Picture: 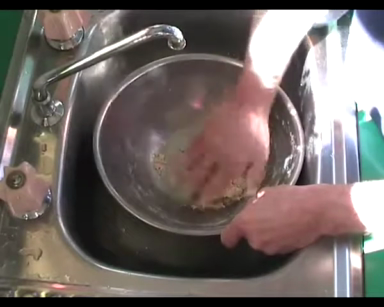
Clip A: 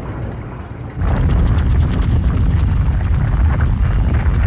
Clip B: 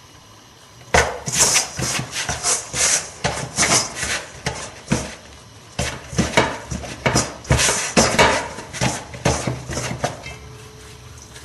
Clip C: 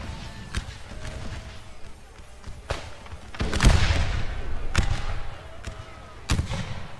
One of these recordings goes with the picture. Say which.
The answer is B